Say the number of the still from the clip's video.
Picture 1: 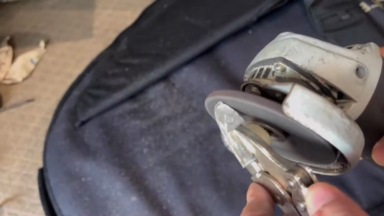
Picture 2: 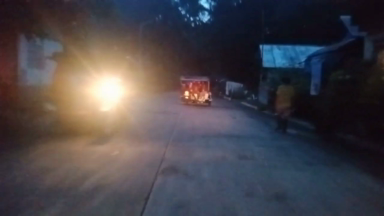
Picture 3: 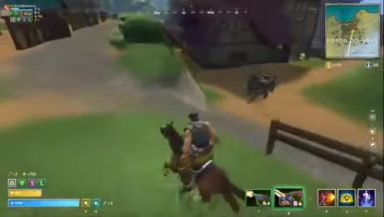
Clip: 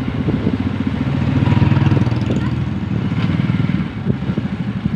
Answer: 2